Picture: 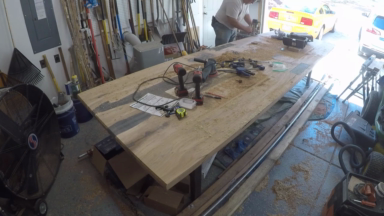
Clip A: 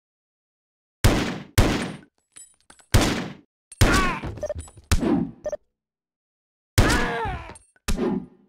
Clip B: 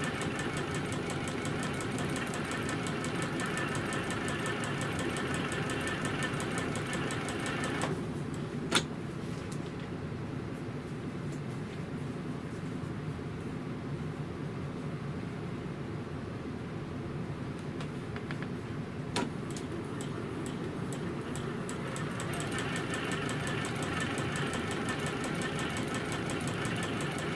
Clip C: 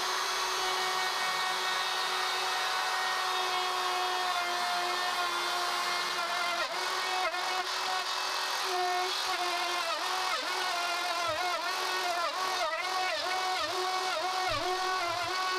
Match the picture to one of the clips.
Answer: C